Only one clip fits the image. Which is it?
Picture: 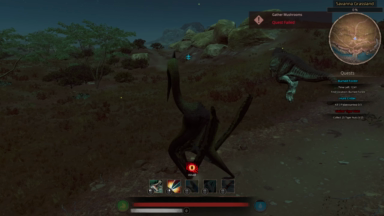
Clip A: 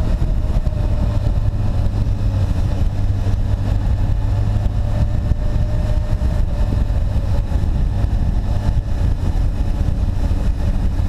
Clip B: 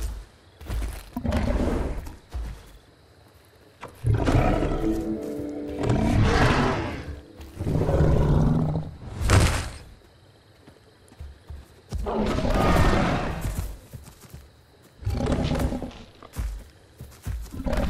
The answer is B